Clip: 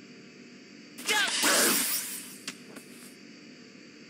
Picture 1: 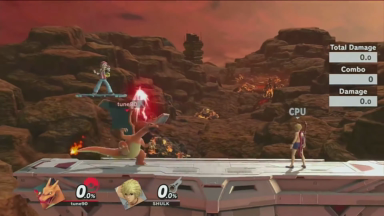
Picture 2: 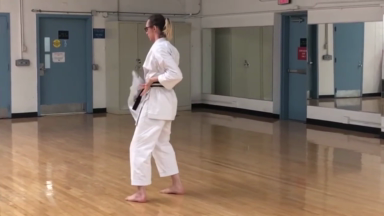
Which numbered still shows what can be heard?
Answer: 1